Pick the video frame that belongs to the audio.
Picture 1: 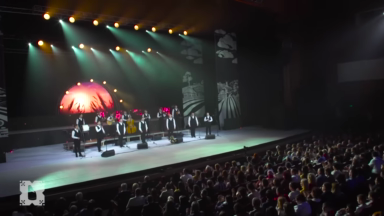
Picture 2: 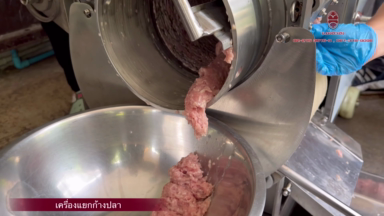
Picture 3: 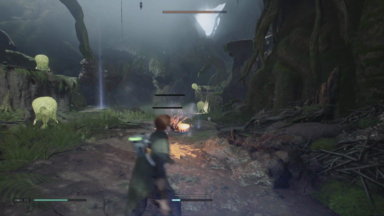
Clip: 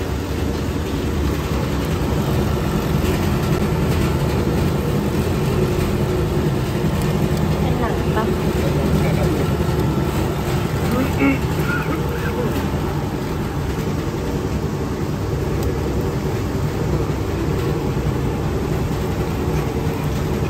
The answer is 2